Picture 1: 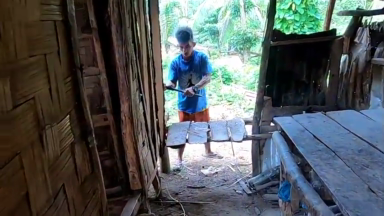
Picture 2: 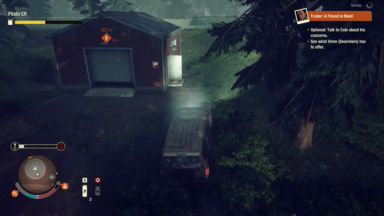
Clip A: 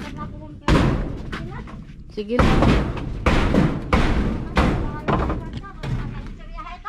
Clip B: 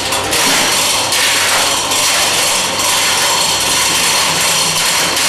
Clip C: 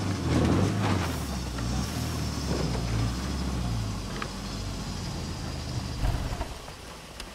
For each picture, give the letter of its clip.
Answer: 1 A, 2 C